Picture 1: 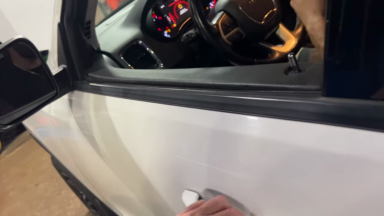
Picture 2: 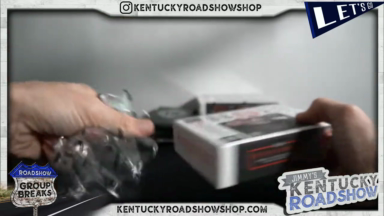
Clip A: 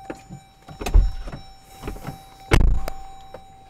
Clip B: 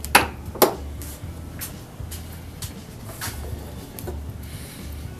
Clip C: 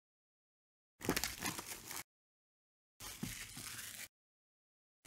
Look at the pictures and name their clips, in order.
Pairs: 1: A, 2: C